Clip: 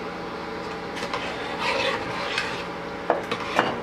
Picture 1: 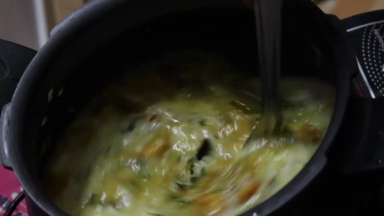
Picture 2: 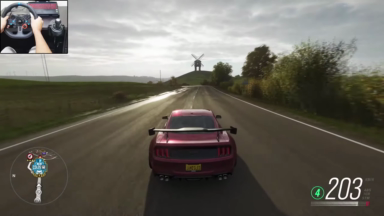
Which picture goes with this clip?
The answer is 1